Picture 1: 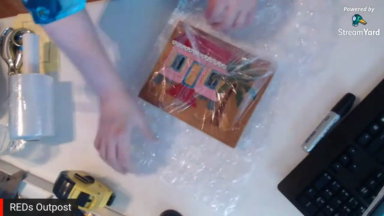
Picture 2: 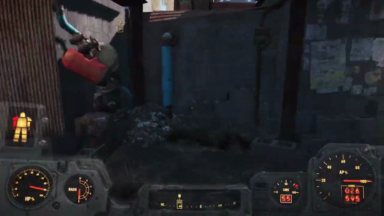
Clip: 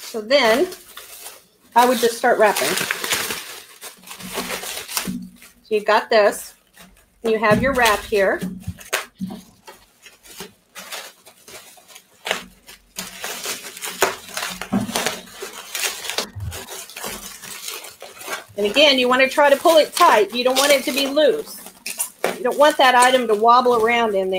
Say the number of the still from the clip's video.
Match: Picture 1